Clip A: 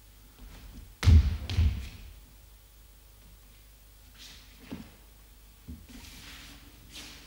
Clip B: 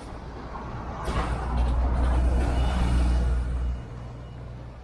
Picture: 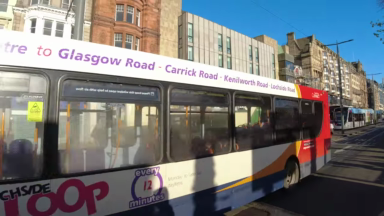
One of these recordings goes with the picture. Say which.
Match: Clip B